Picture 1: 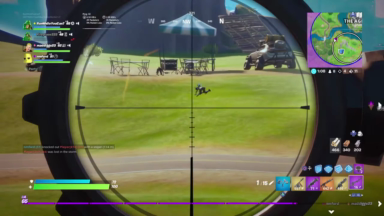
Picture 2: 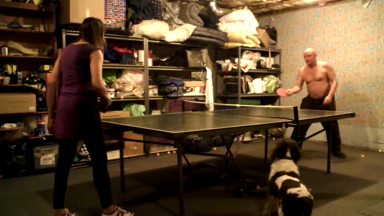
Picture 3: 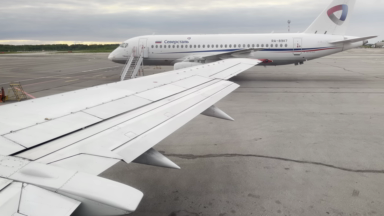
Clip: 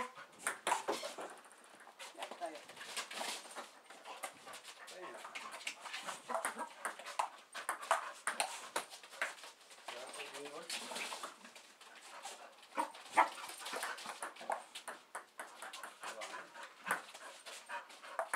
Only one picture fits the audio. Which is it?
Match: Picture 2